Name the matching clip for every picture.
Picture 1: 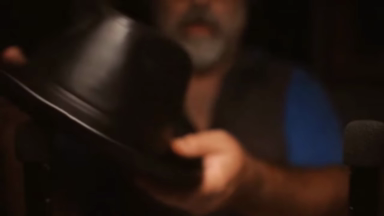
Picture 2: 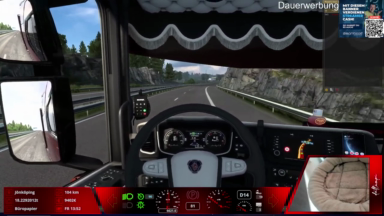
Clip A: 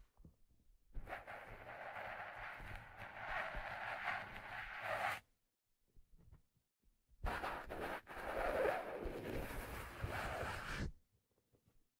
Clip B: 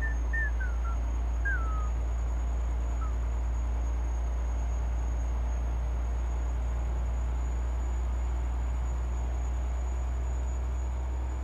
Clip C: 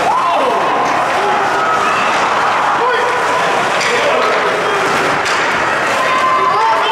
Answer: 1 A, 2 B